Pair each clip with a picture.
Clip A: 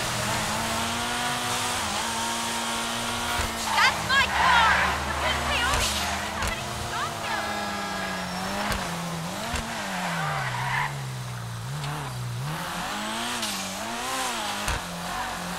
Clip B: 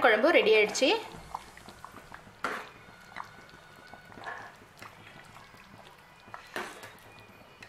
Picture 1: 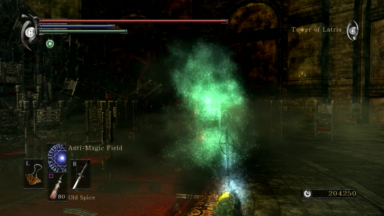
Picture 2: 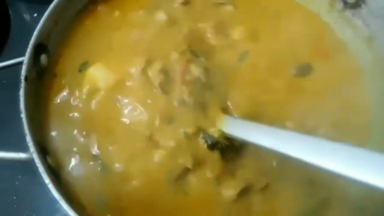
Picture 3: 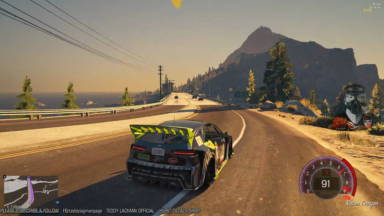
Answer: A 3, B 2